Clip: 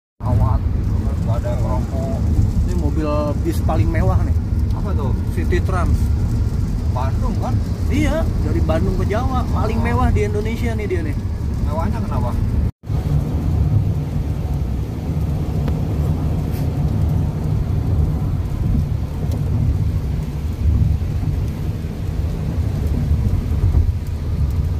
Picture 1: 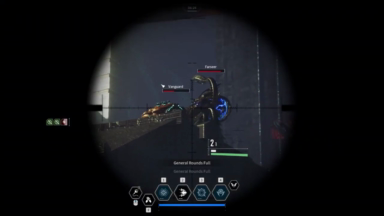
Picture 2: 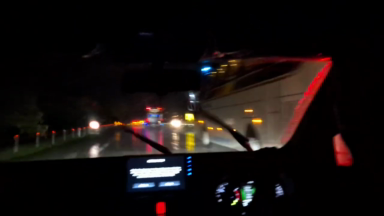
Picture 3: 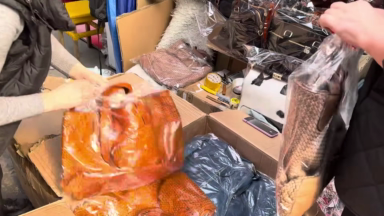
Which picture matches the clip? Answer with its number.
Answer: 2